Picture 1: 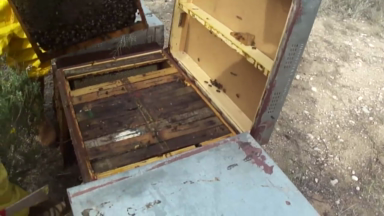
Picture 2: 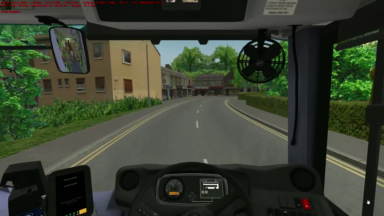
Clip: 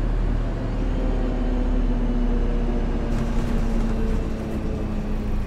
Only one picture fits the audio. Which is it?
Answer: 2